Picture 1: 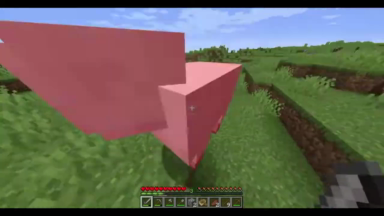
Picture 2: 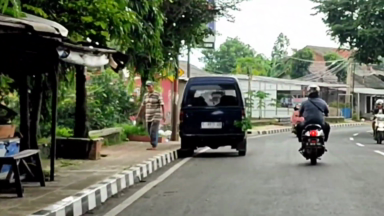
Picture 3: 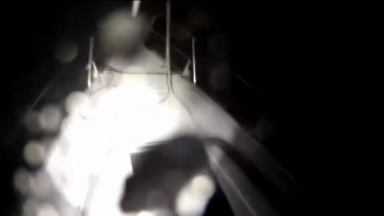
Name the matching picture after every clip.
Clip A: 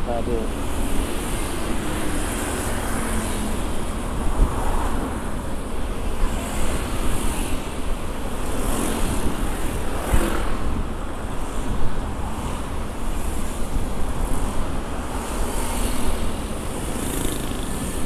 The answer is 2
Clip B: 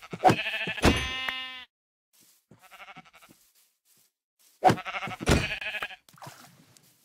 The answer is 1